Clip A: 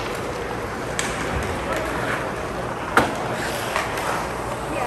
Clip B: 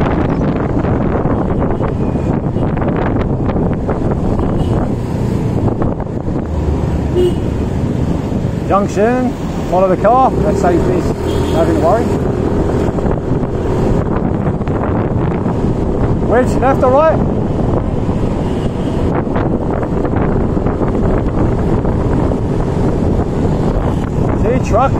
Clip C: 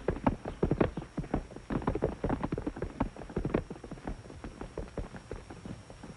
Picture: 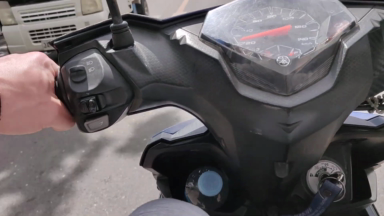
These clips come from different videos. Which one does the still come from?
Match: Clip B